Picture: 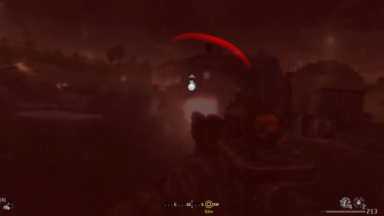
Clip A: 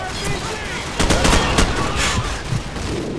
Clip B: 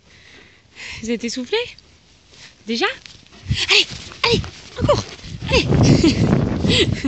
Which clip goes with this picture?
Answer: A